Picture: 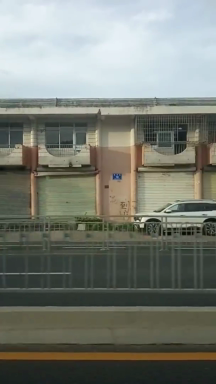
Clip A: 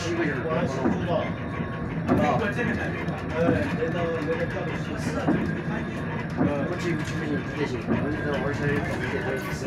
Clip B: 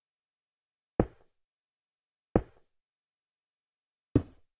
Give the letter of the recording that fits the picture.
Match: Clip A